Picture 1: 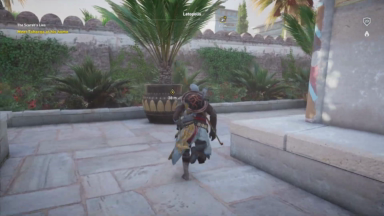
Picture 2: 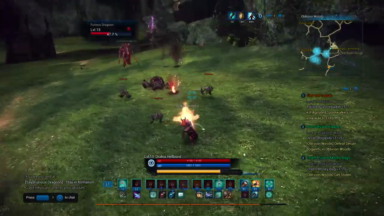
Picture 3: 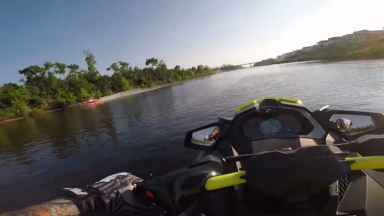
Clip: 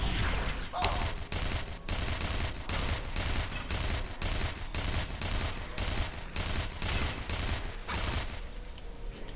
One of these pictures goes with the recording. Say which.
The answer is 2